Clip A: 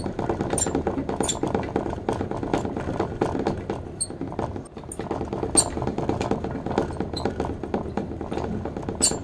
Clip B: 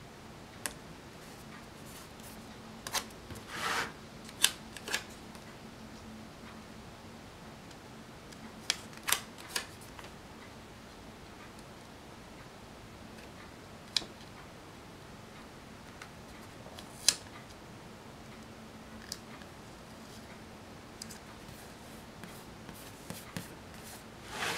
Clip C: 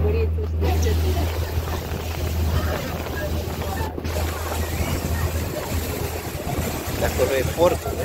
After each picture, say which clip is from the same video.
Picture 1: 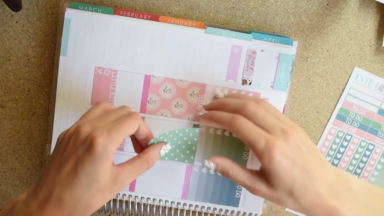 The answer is B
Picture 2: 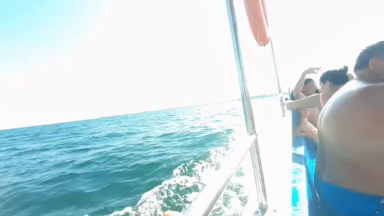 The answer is C